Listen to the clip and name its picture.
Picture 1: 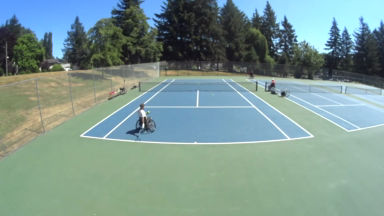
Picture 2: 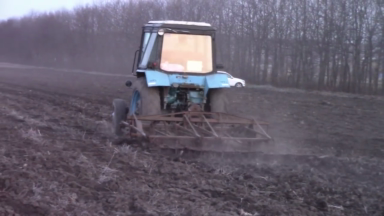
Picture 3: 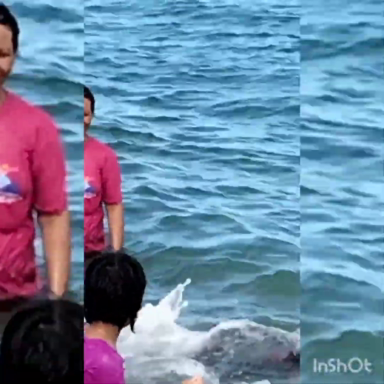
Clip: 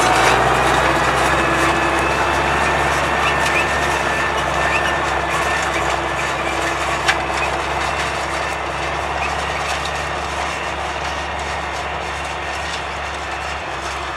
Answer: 2